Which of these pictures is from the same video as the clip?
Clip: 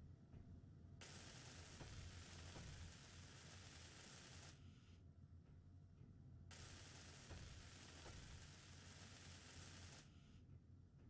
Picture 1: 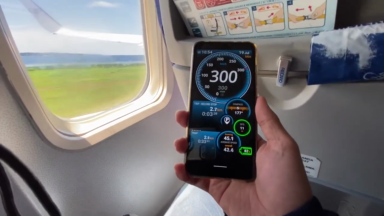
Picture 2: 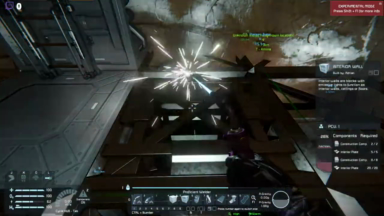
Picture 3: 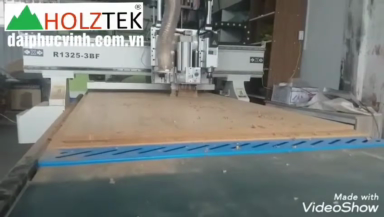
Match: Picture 2